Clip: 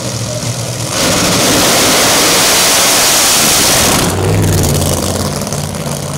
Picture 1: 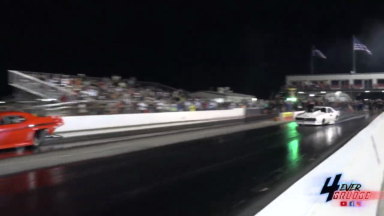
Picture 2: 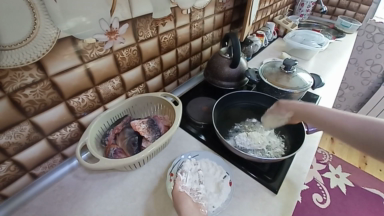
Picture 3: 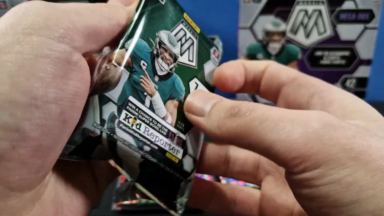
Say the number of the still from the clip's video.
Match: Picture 1